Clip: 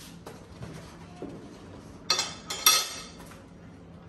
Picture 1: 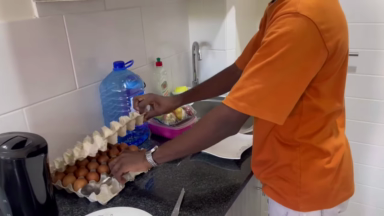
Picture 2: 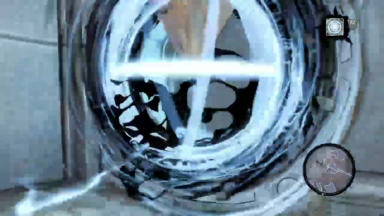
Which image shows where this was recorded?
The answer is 1